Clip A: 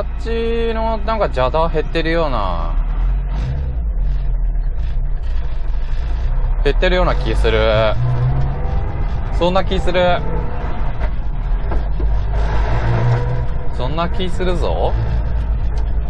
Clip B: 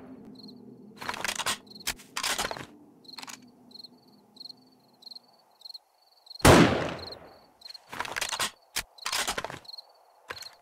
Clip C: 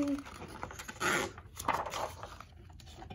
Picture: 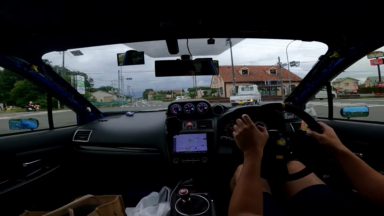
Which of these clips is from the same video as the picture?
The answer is A